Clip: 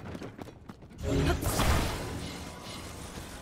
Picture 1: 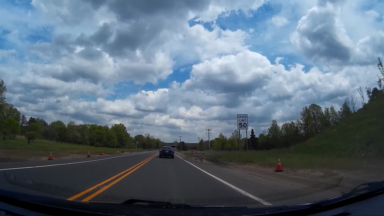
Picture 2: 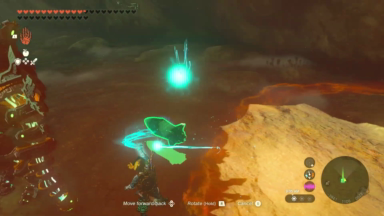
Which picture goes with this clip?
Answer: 2